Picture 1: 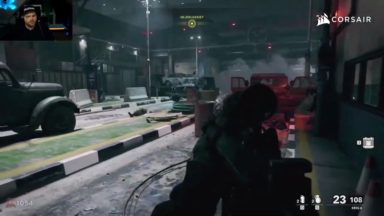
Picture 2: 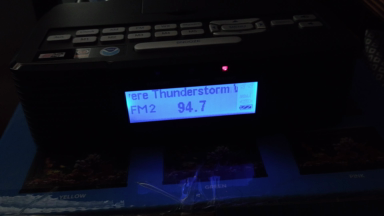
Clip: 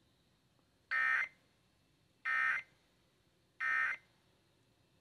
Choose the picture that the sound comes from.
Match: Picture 2